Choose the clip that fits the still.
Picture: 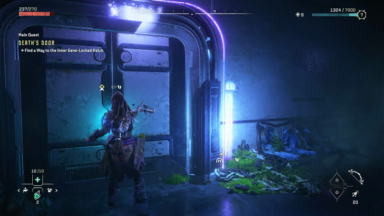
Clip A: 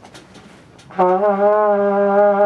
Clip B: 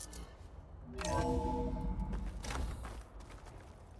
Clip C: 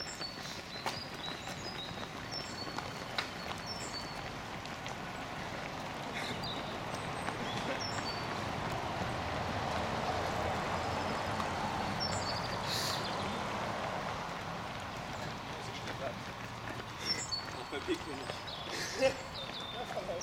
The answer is B